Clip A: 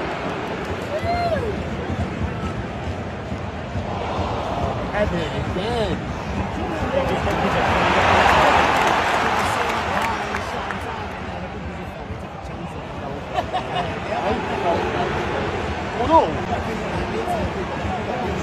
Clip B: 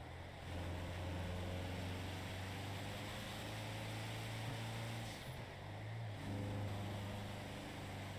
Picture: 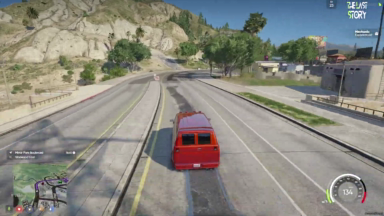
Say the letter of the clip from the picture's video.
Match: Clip B